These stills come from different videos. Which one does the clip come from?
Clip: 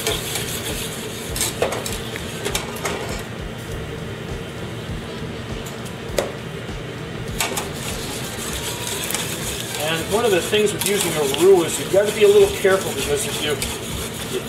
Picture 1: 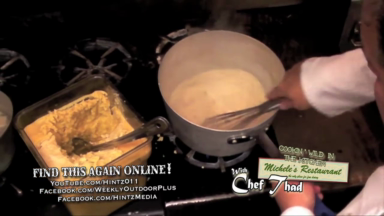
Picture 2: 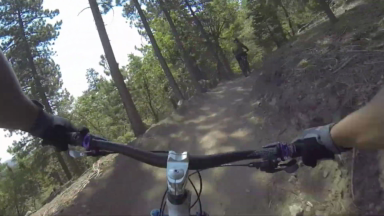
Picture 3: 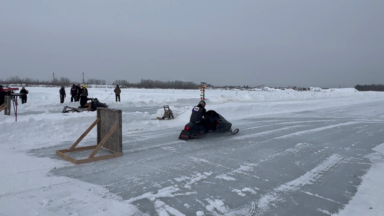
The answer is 1